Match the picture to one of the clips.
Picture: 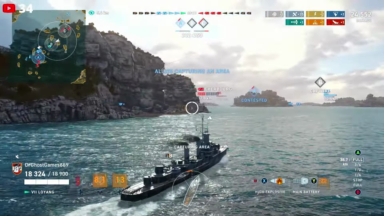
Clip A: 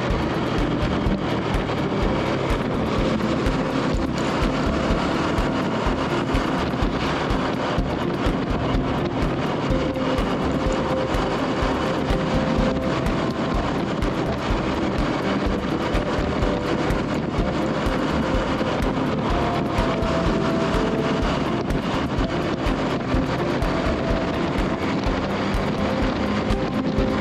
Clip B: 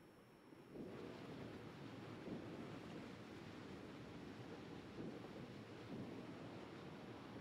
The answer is B